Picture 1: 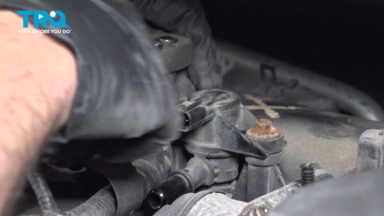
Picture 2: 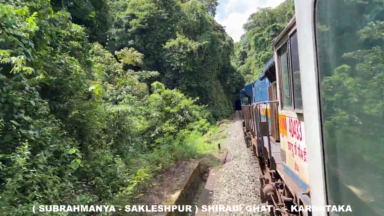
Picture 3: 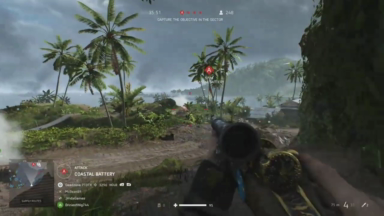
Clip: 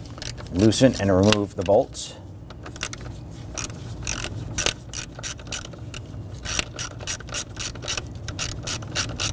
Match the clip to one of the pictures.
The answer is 1